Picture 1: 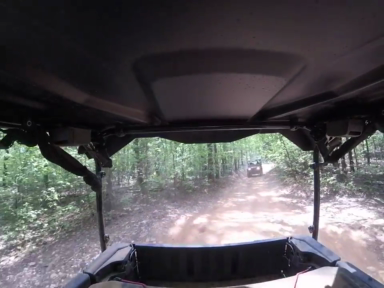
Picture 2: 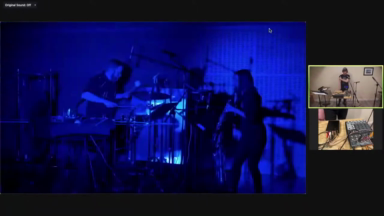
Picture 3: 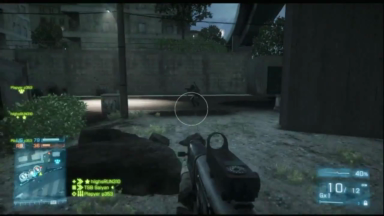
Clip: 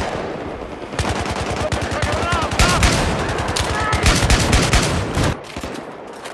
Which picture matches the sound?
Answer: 3